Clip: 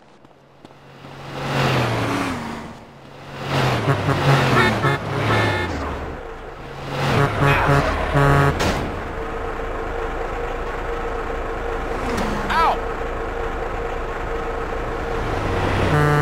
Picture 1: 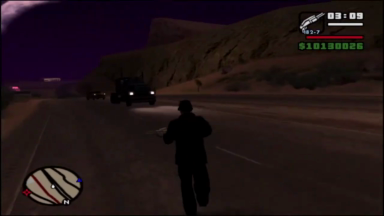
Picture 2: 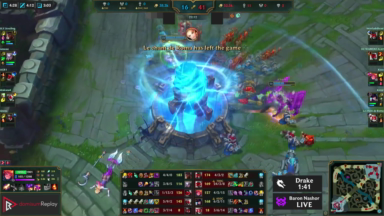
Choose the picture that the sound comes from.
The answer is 1